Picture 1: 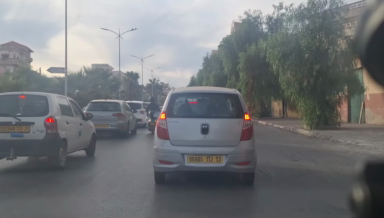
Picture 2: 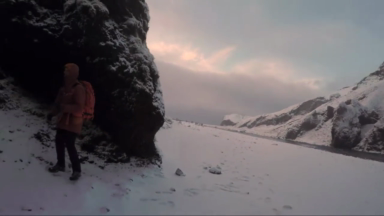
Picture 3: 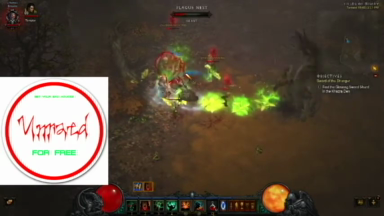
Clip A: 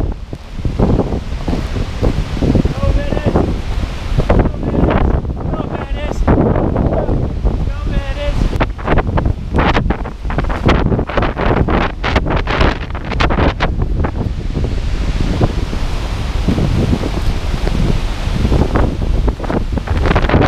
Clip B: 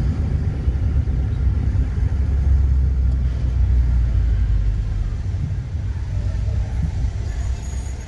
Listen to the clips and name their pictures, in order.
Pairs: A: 2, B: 1